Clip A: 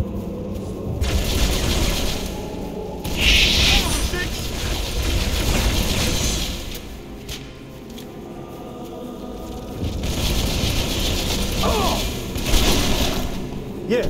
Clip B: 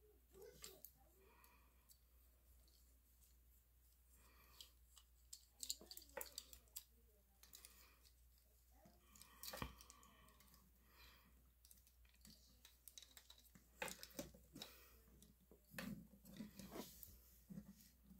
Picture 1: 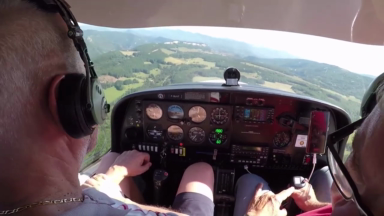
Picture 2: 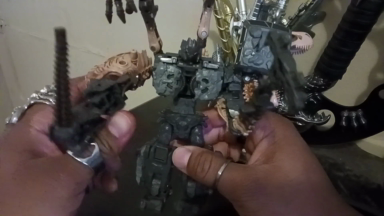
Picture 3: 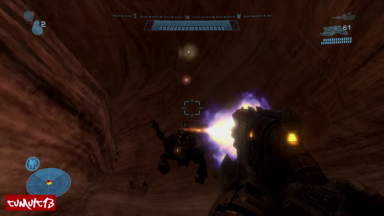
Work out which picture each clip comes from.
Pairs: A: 3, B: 2